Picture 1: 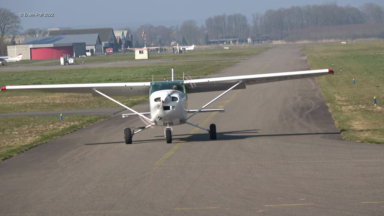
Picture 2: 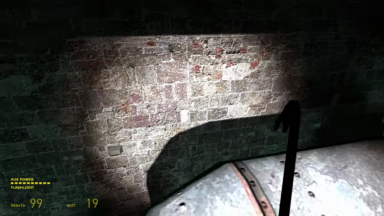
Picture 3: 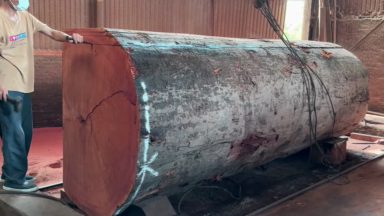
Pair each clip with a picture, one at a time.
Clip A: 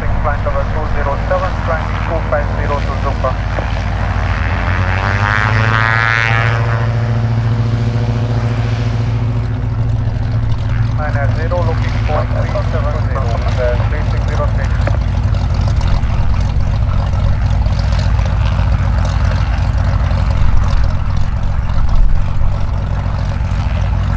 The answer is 1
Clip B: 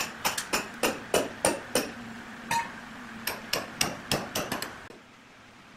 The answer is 3